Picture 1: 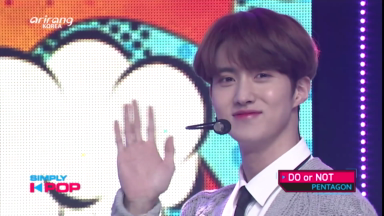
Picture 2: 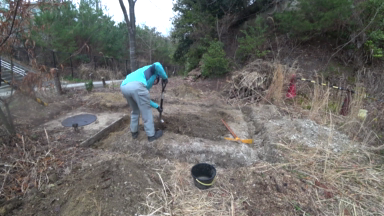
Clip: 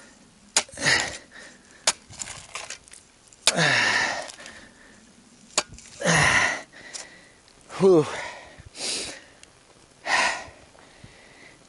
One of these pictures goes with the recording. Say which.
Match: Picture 2